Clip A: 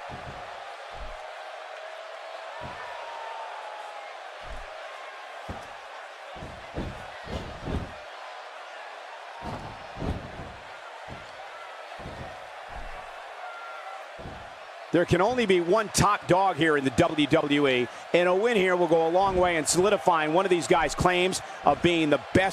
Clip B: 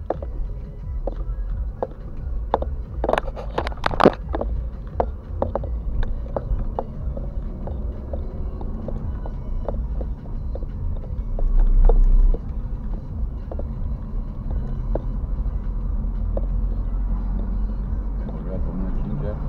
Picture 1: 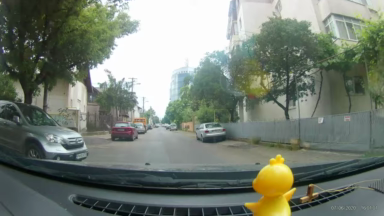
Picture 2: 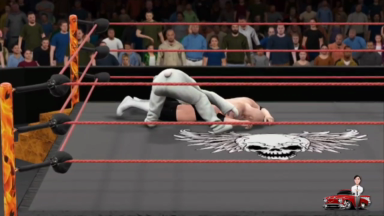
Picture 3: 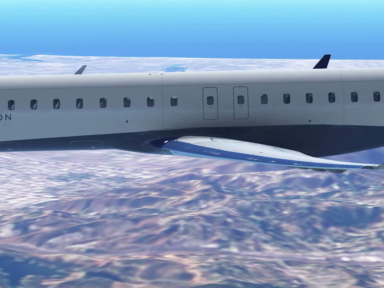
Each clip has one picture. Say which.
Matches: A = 2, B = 1